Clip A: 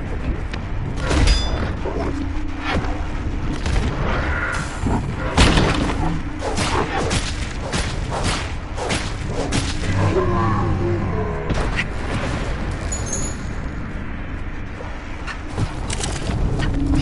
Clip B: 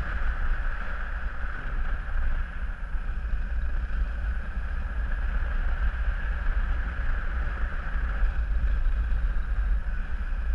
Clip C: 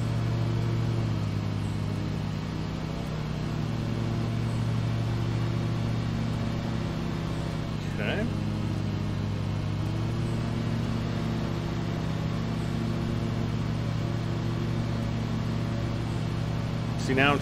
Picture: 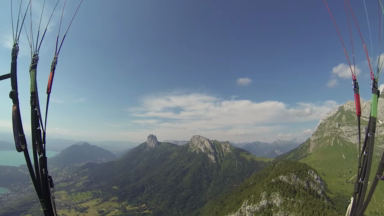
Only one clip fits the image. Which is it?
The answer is B